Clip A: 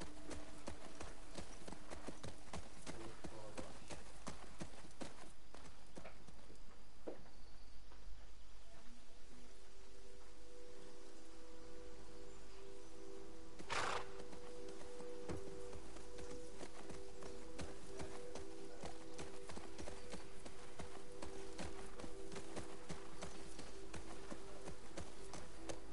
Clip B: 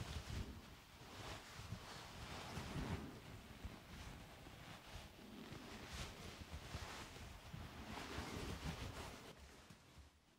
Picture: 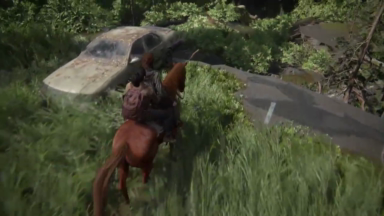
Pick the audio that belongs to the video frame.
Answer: A